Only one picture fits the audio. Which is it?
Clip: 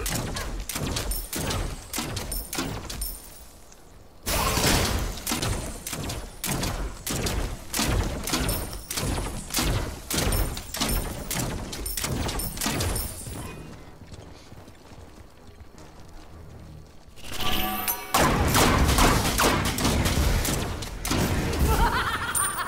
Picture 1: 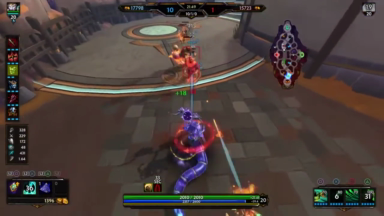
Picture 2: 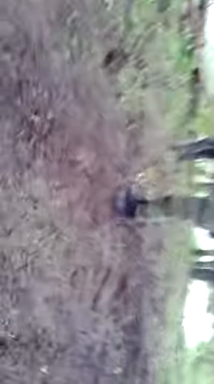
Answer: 1